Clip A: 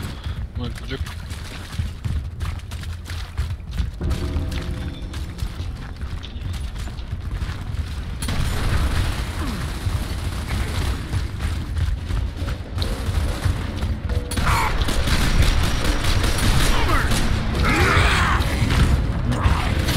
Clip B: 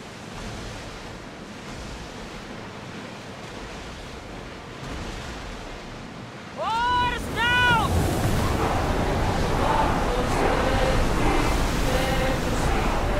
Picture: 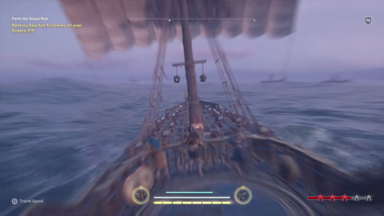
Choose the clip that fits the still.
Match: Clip B